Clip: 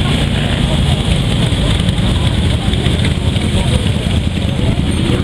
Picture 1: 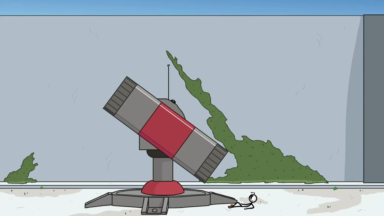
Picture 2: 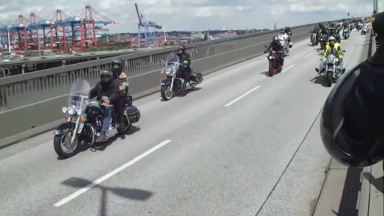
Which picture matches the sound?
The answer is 2